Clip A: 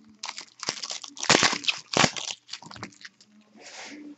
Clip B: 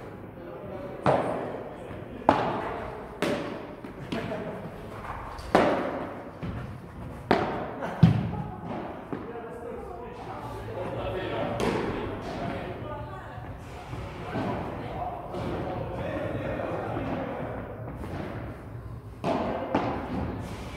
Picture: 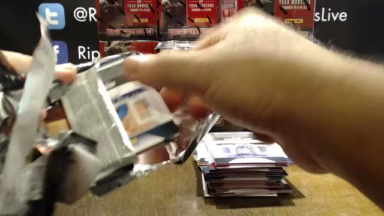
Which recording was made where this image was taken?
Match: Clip A